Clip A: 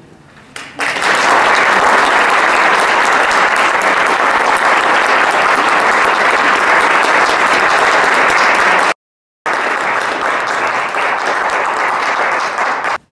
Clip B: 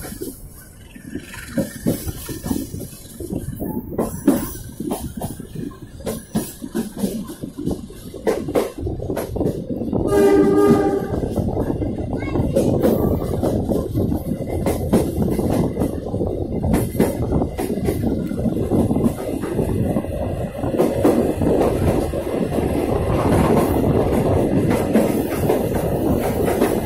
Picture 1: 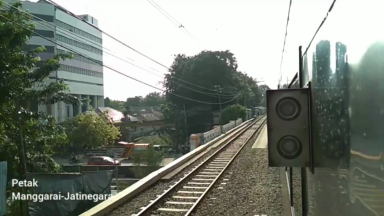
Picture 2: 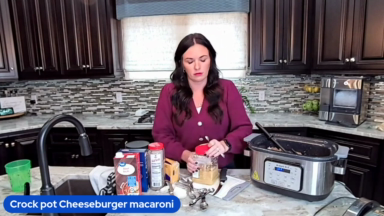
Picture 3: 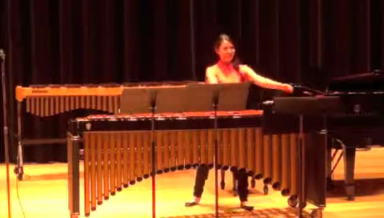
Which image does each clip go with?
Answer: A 3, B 1